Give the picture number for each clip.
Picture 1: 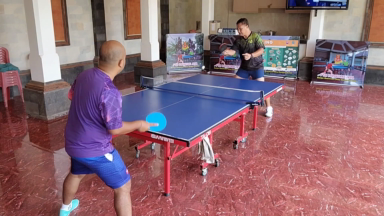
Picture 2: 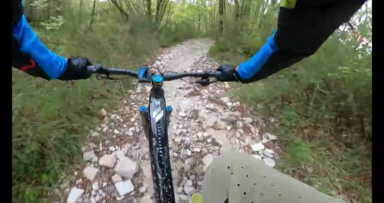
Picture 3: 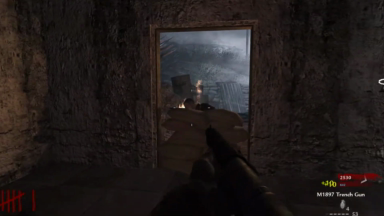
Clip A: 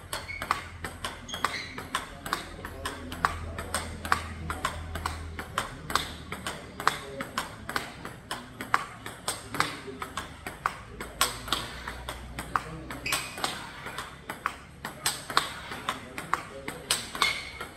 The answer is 1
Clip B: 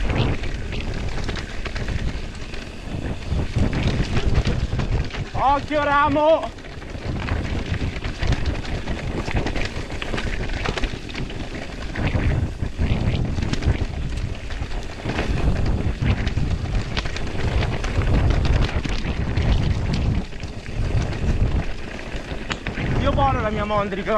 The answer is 2